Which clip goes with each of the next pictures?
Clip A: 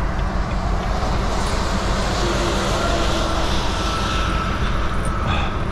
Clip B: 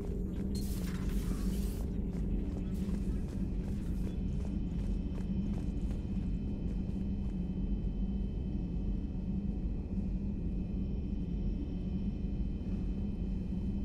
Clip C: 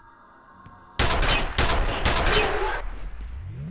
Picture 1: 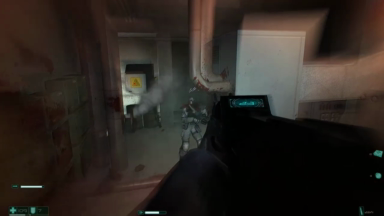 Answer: C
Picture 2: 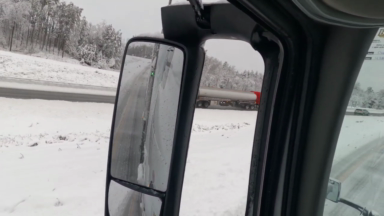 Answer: A